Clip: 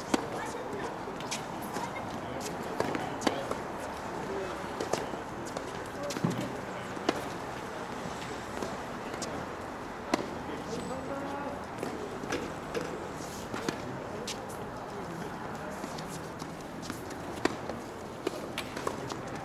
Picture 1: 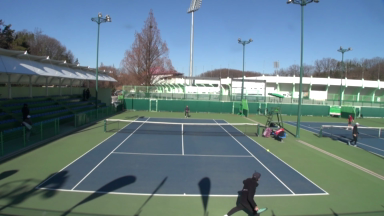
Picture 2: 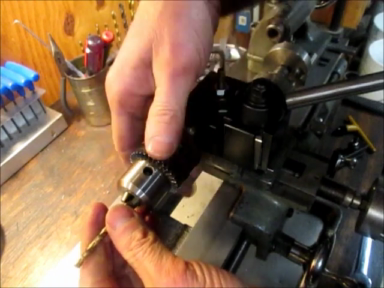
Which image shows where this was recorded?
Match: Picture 1